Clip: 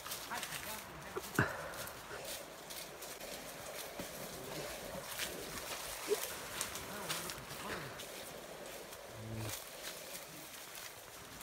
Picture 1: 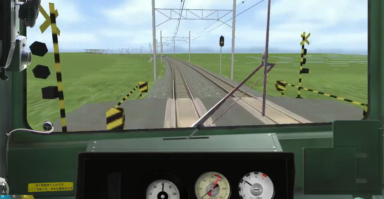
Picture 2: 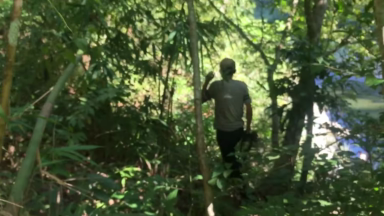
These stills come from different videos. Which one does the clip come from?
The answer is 2